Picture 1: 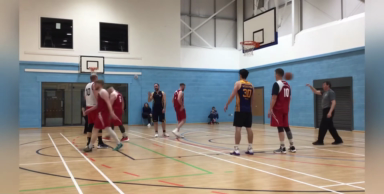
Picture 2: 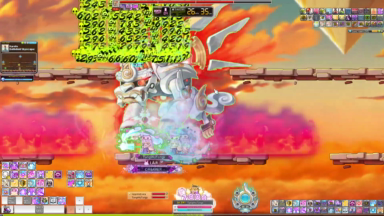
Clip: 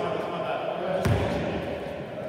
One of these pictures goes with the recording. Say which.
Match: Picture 1